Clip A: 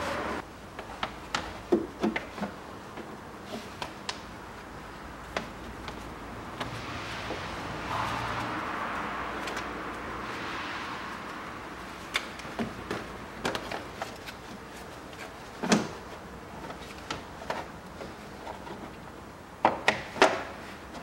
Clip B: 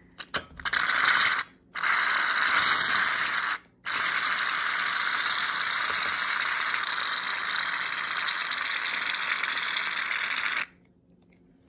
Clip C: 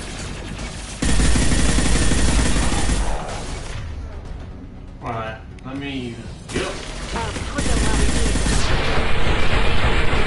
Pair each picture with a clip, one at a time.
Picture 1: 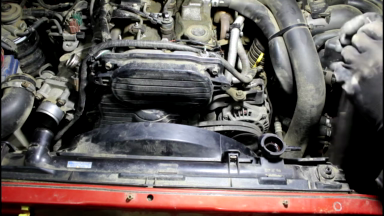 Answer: A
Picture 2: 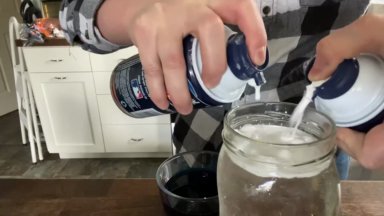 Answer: B